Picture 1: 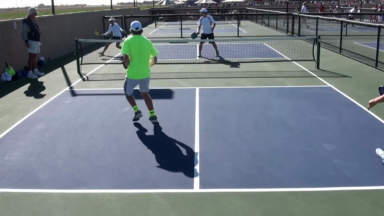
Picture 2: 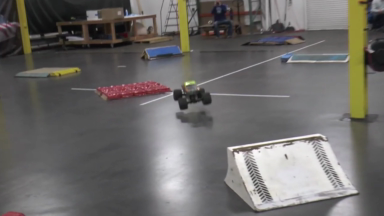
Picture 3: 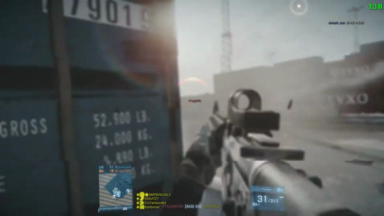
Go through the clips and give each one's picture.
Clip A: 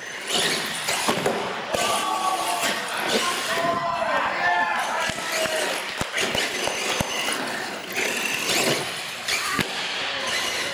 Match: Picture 2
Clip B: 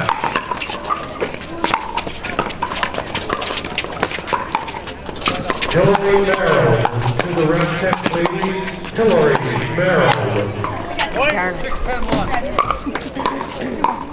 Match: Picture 1